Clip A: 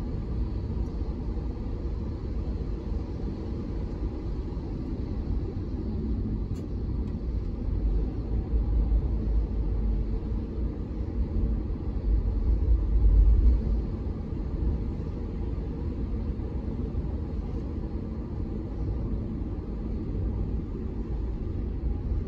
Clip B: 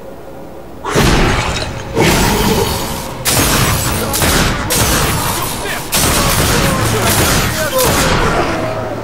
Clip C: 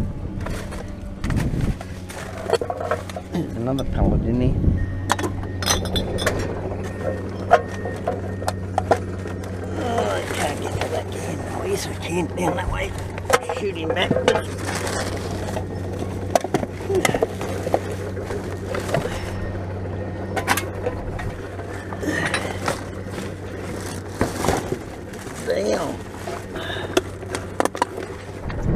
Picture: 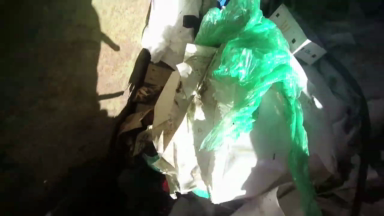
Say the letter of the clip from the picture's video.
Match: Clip C